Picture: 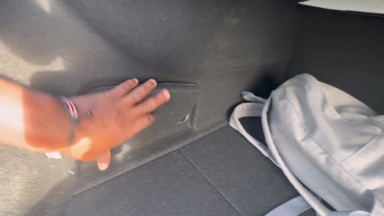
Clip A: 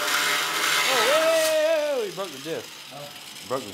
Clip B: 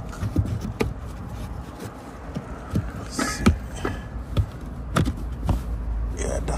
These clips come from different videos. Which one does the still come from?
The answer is B